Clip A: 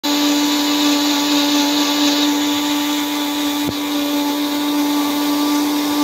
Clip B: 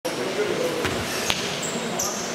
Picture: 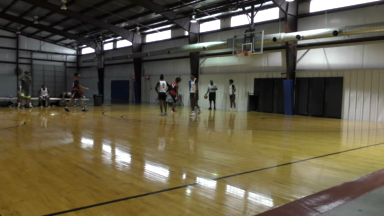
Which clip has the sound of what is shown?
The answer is B